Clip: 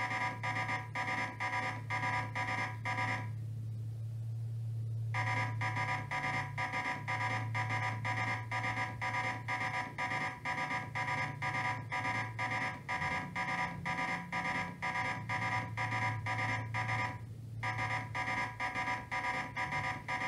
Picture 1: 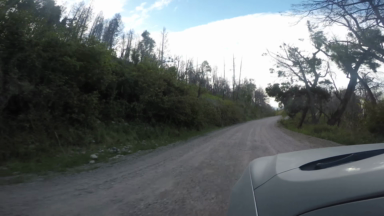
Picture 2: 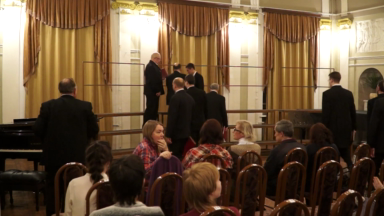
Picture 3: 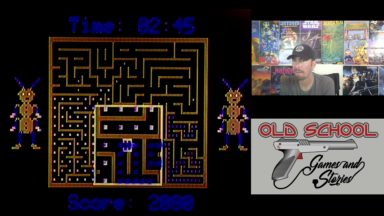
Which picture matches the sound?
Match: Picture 3